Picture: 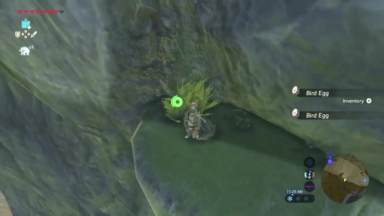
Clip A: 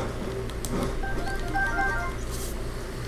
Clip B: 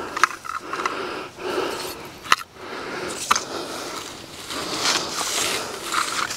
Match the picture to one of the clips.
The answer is A